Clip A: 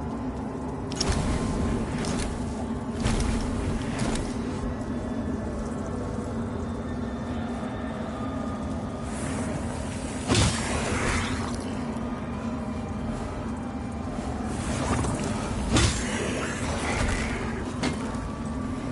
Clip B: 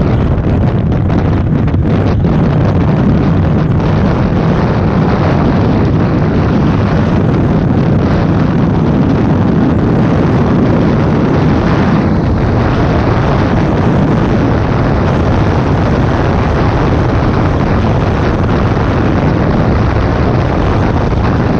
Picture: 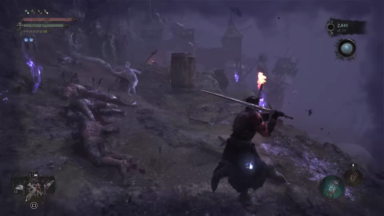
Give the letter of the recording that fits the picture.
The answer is A